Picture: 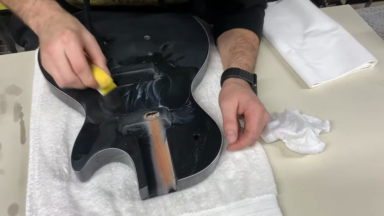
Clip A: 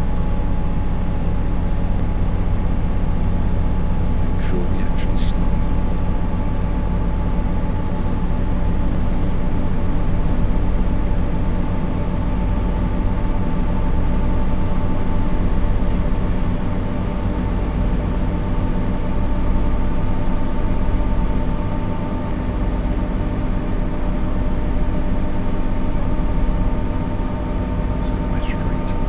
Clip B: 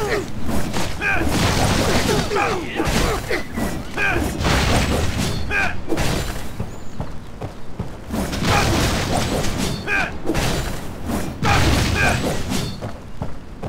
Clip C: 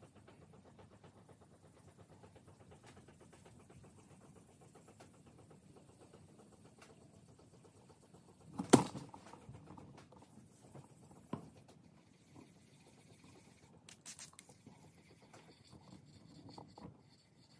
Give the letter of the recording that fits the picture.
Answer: C